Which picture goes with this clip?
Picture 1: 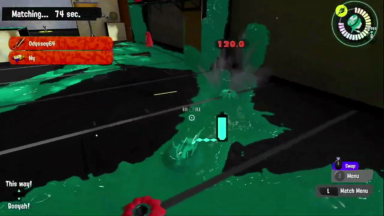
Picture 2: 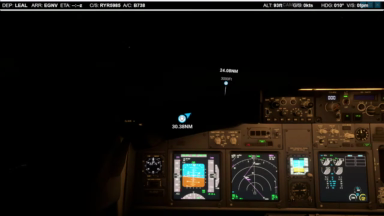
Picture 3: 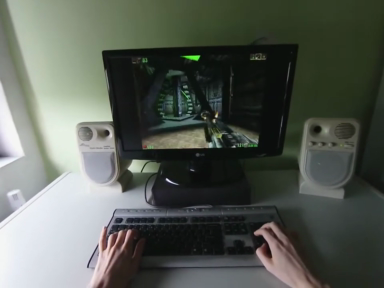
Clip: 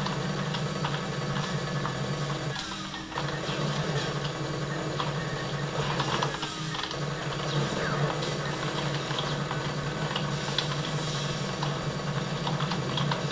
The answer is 3